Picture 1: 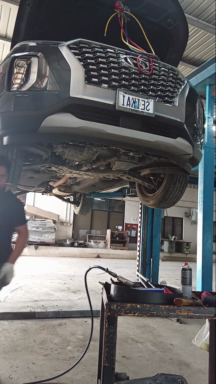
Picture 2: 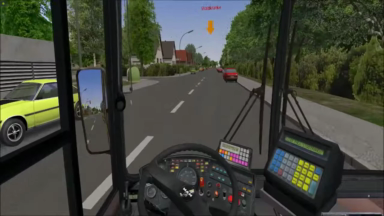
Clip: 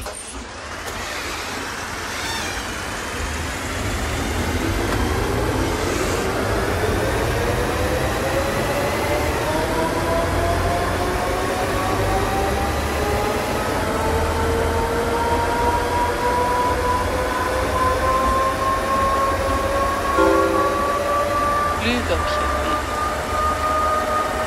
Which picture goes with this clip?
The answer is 2